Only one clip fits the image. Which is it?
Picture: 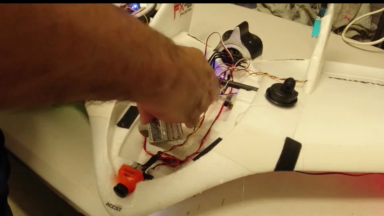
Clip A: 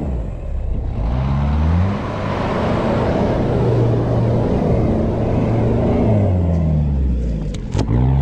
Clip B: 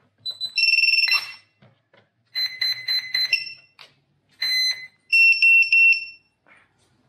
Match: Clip B